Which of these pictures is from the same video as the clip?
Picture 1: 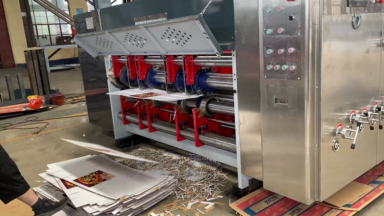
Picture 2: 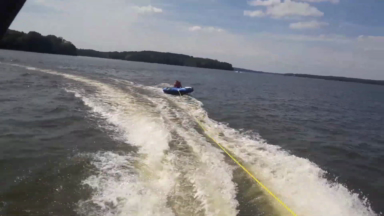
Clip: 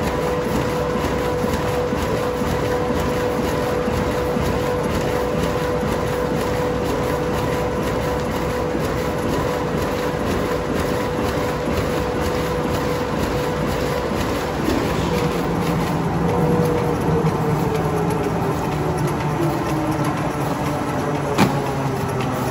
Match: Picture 1